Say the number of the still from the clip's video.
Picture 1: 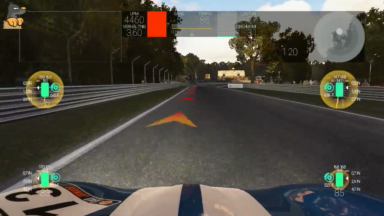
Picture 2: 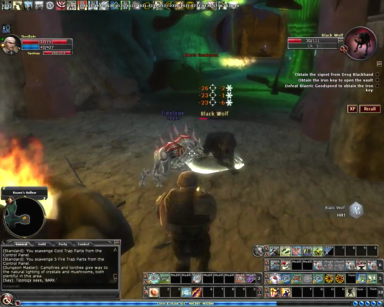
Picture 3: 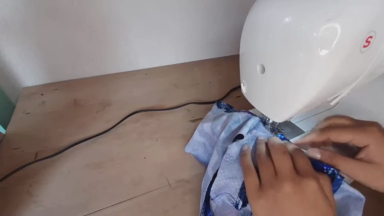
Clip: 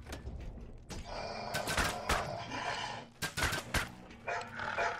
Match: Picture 2